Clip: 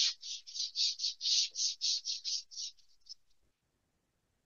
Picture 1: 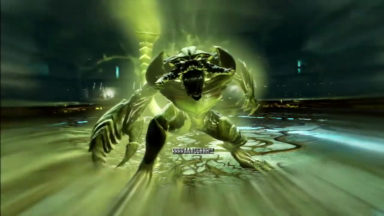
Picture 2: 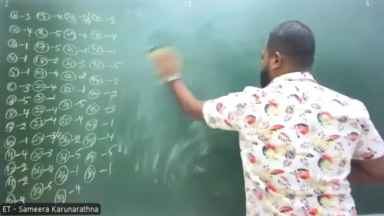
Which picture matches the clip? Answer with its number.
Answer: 2